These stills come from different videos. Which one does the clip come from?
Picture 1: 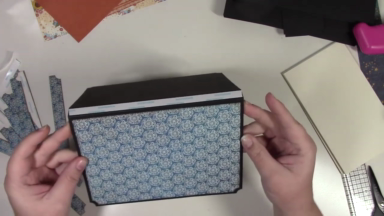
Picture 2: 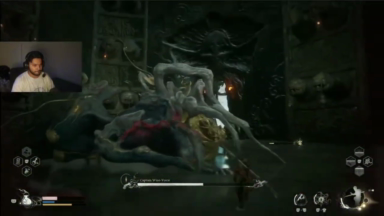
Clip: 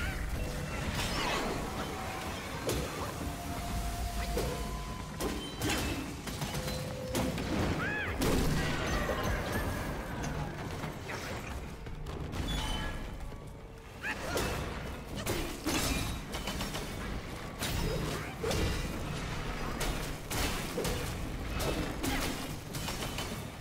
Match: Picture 2